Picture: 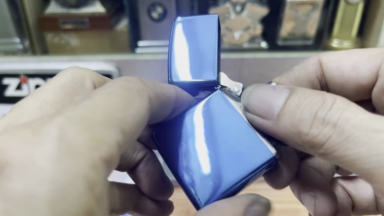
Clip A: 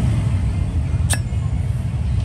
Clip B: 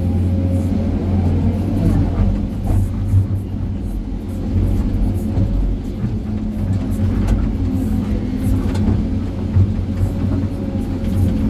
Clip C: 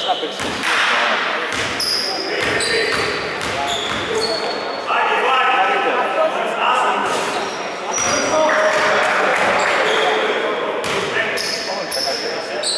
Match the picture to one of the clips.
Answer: A